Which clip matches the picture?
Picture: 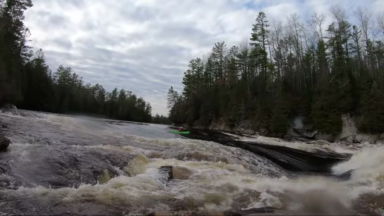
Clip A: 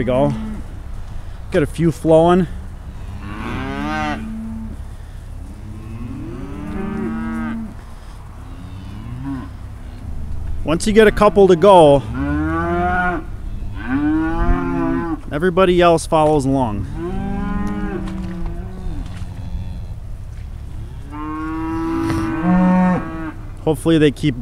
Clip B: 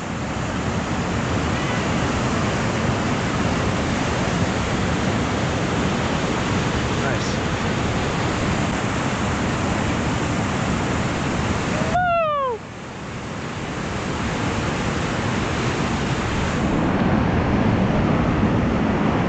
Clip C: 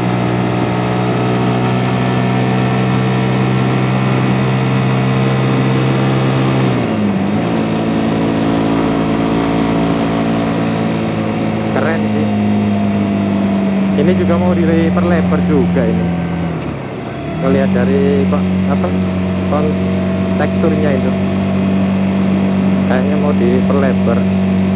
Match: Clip B